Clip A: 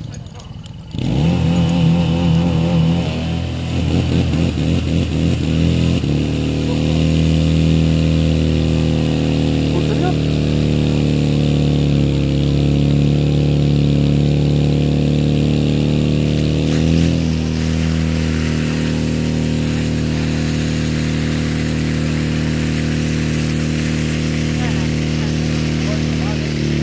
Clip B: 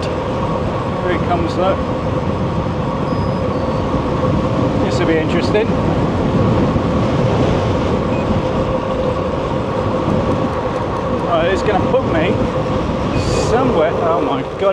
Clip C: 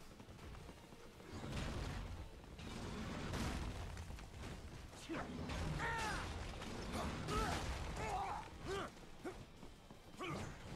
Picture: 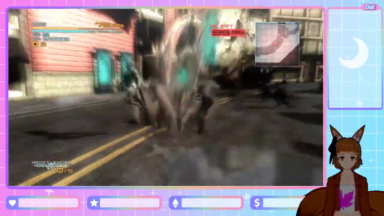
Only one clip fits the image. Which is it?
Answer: C